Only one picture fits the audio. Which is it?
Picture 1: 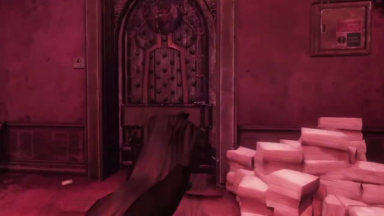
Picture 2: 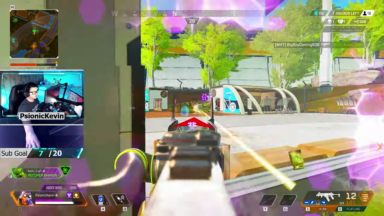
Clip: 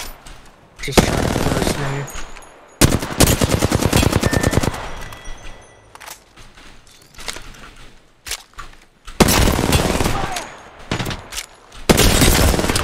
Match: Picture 2